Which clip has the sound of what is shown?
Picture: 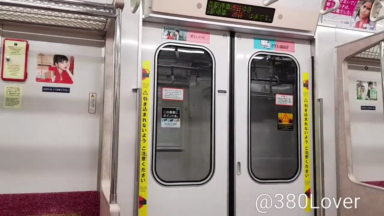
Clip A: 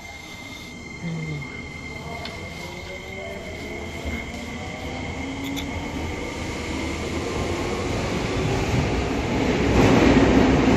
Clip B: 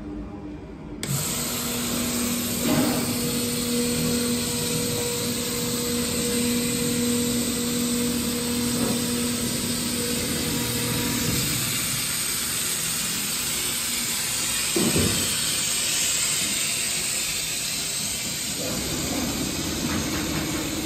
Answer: A